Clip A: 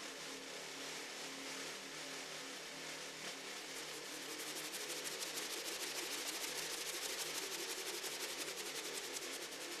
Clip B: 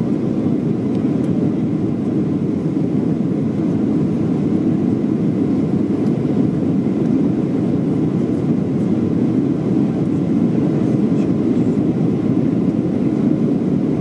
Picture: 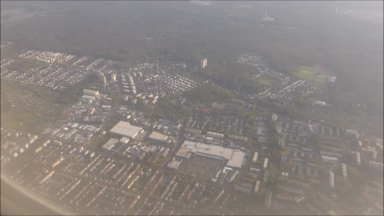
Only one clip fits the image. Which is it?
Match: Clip B